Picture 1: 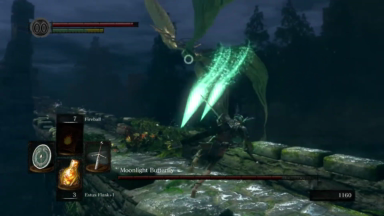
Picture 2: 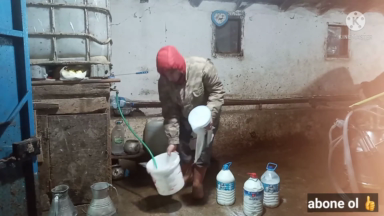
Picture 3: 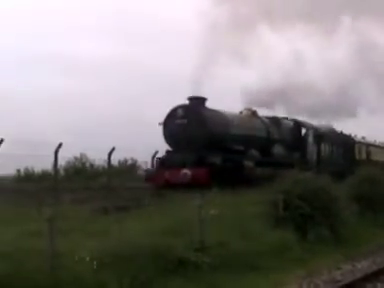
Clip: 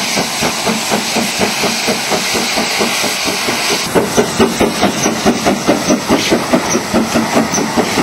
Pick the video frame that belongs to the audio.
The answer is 3